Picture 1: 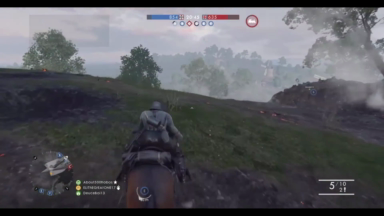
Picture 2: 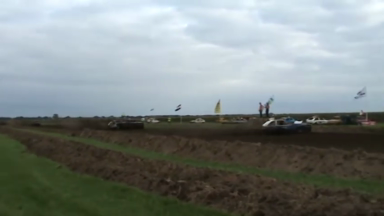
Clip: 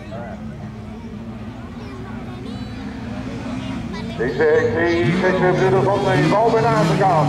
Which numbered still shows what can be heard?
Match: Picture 2